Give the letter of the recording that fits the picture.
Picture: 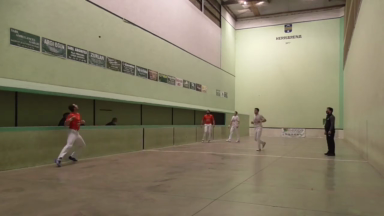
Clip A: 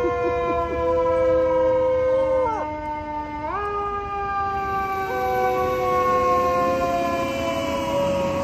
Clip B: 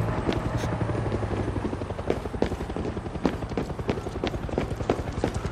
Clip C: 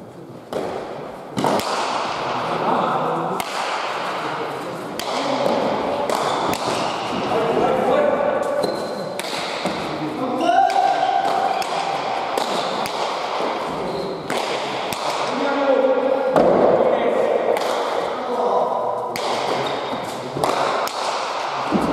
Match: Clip C